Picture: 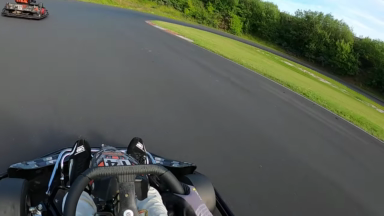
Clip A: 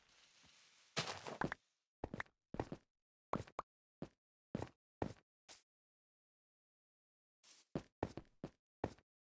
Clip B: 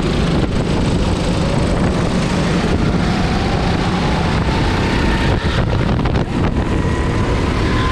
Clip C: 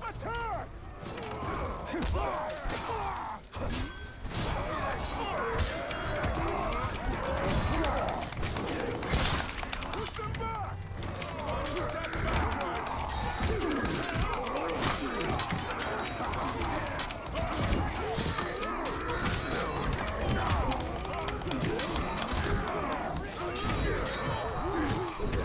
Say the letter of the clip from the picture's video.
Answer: B